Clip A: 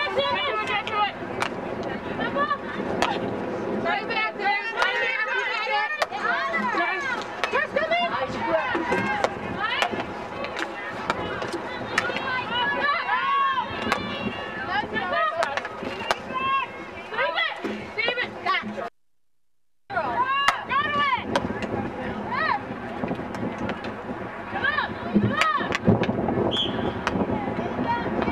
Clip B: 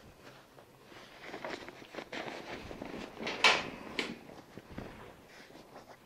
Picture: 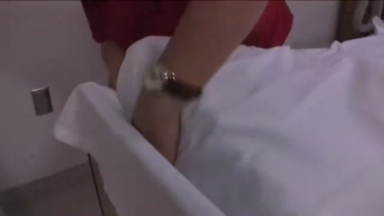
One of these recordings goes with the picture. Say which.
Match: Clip B